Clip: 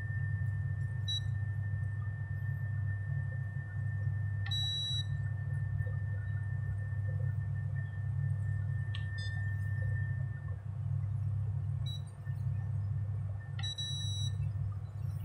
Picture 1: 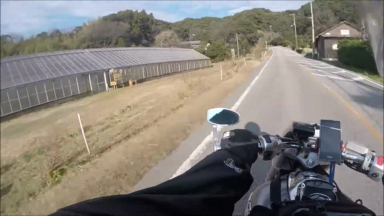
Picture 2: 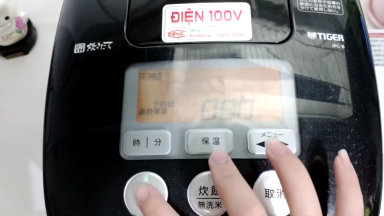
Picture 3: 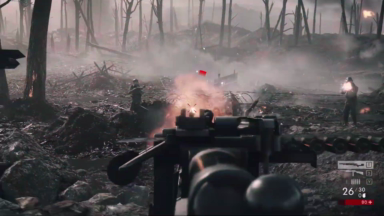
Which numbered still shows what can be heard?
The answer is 2